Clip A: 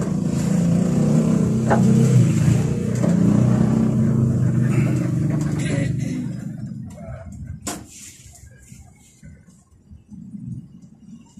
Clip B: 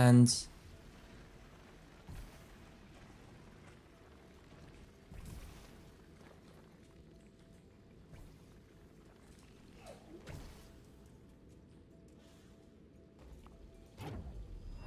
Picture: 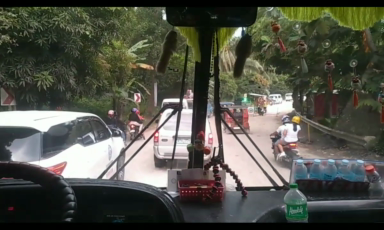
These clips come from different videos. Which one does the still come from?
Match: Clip A